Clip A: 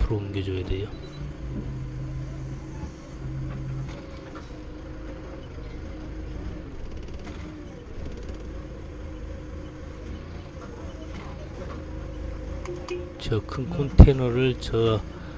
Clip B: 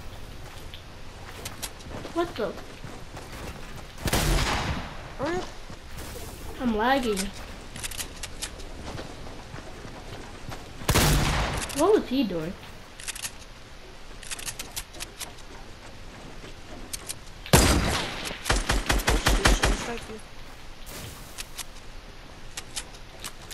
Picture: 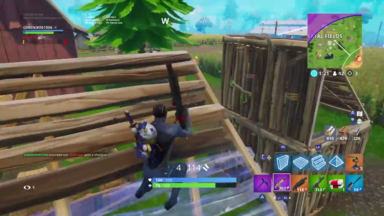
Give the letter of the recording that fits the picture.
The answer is B